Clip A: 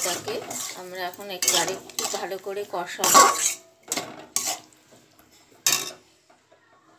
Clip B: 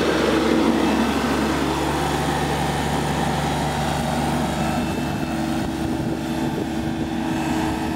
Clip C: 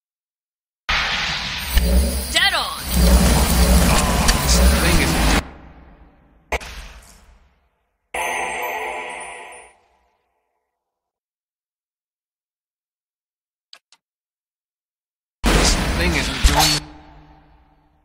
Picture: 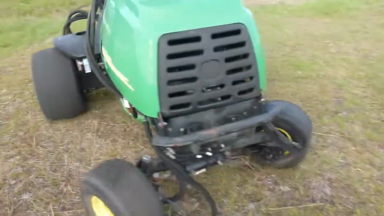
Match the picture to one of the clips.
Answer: B